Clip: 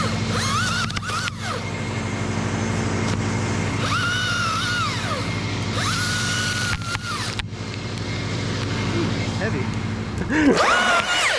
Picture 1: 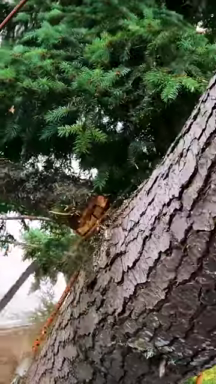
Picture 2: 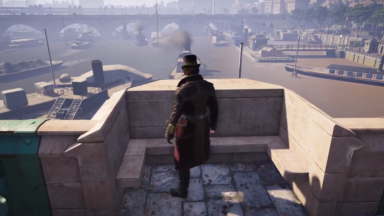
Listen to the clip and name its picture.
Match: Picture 1